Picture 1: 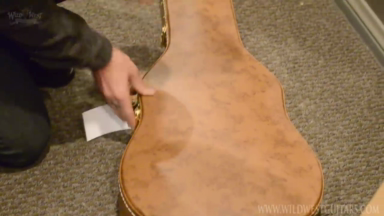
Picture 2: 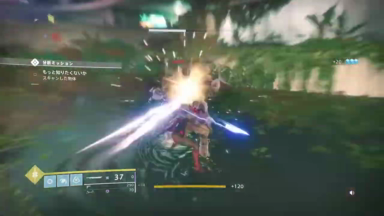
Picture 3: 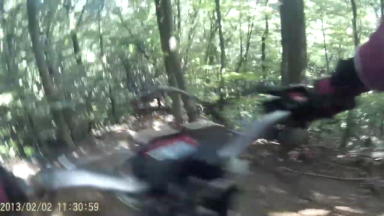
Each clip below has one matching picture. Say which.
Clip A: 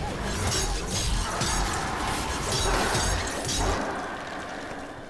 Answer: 2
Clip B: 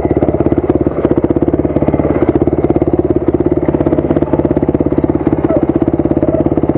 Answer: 3